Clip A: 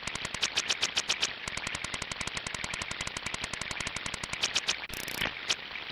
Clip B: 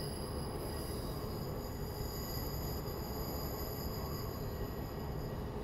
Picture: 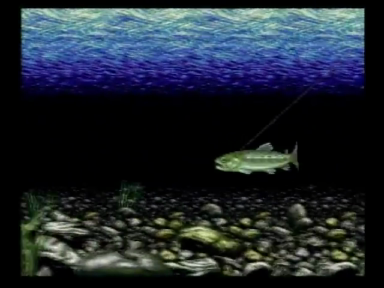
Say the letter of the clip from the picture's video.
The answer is A